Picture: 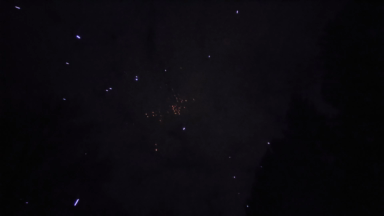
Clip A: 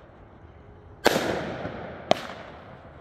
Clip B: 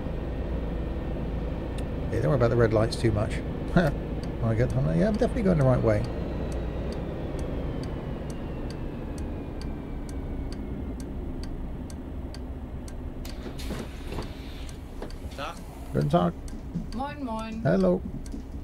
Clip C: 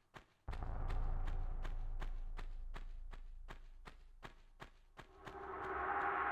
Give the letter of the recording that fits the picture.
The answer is A